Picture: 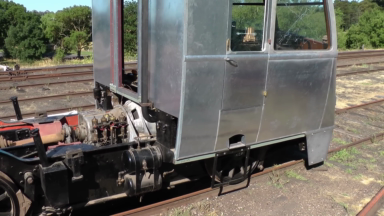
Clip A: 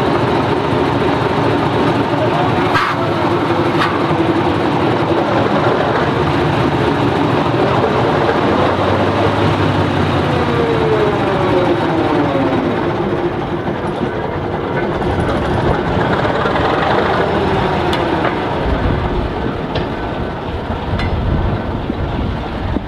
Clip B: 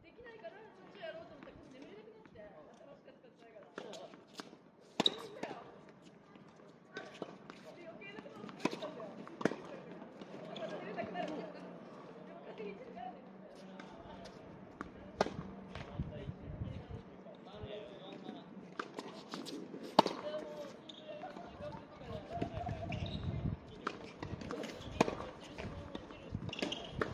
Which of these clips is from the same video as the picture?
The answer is A